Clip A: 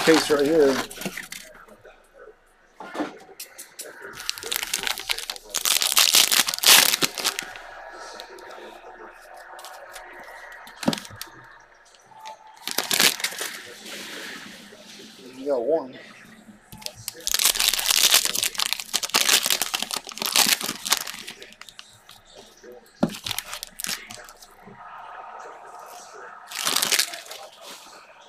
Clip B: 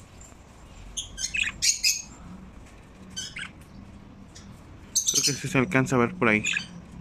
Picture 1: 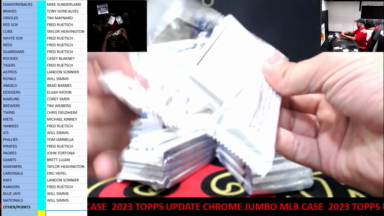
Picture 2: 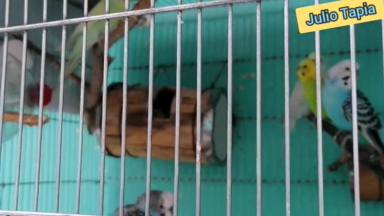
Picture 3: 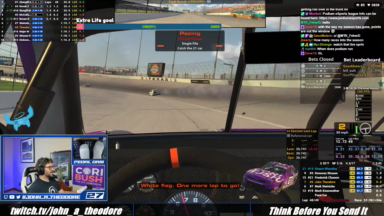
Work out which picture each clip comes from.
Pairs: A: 1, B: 2